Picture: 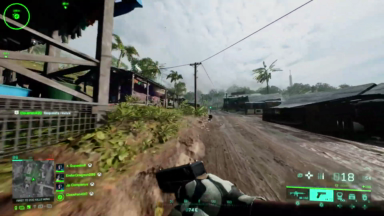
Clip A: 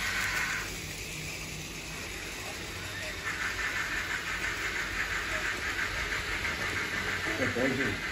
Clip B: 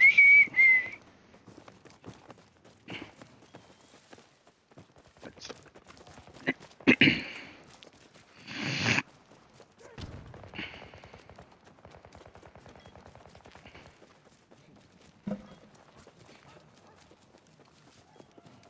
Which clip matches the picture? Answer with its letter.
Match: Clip B